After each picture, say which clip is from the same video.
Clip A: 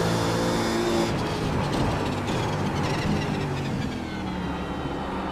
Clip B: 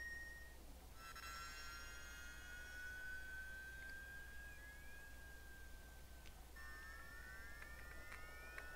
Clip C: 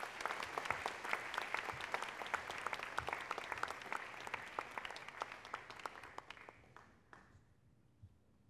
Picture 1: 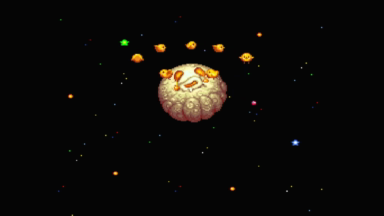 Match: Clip B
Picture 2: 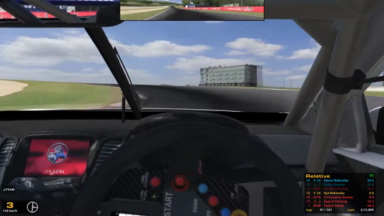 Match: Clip A